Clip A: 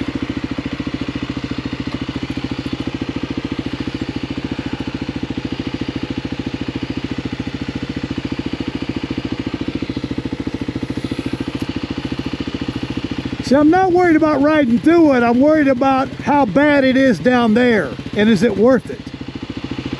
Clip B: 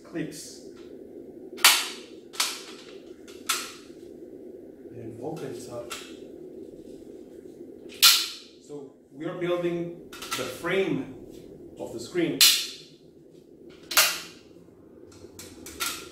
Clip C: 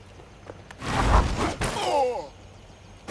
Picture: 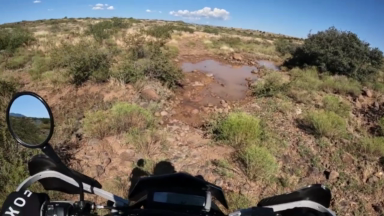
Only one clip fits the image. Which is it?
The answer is A